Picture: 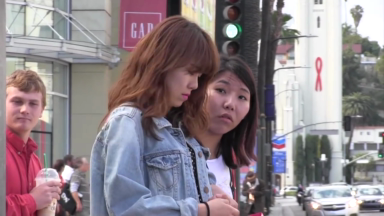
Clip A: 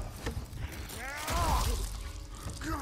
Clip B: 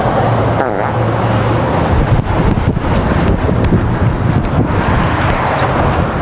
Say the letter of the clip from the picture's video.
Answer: B